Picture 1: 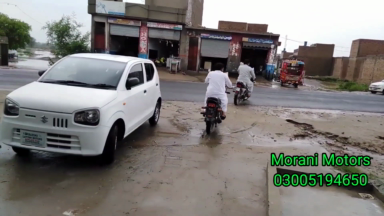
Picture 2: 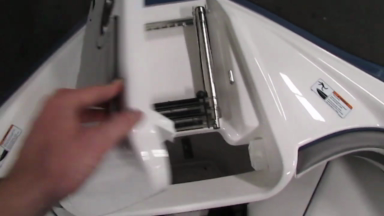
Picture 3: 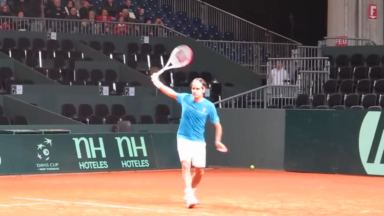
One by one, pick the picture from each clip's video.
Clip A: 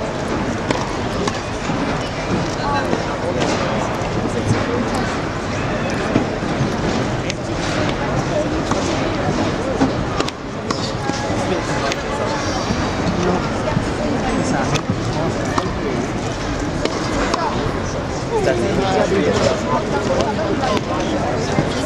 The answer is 3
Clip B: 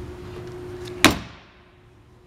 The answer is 2